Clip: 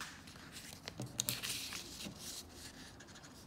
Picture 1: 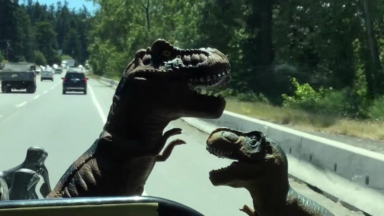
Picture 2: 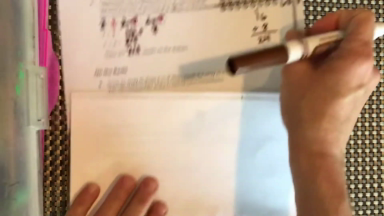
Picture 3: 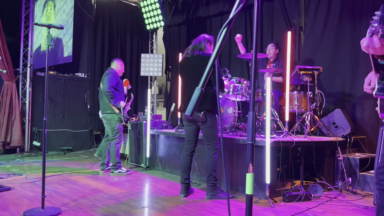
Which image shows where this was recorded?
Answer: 2